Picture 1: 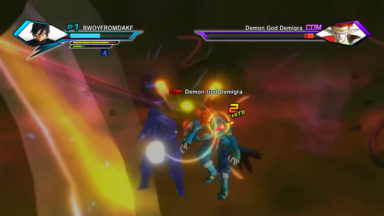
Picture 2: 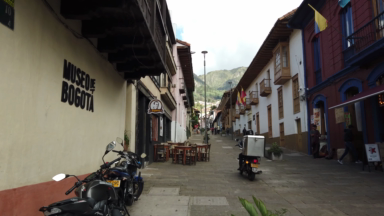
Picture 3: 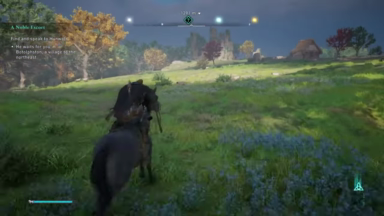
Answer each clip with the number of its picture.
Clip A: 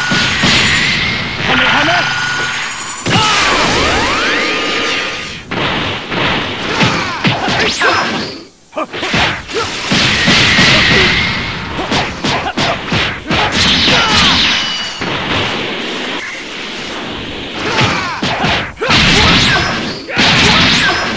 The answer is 1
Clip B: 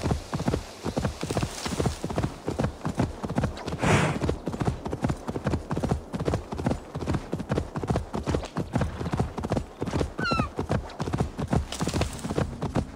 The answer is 3